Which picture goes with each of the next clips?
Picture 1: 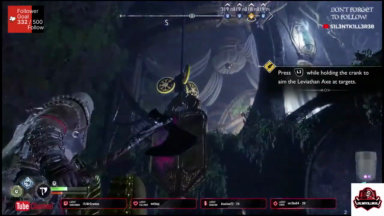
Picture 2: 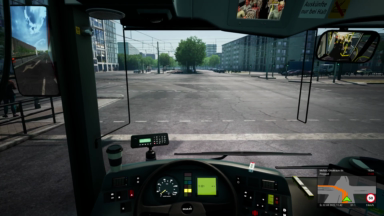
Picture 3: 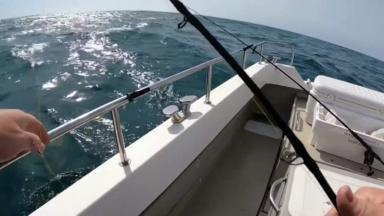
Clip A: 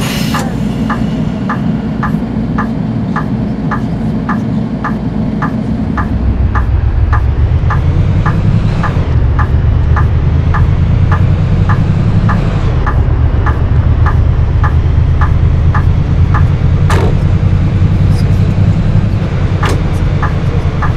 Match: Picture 2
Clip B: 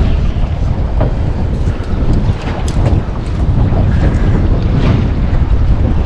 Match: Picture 3